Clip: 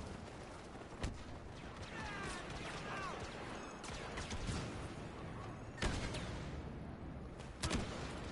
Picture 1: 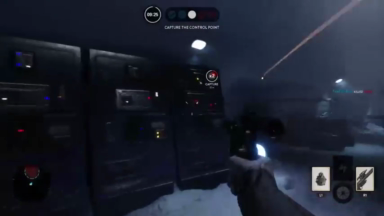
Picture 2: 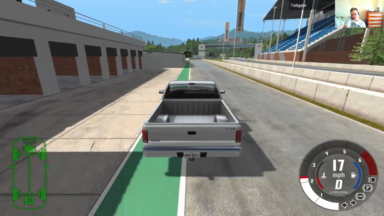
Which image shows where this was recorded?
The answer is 1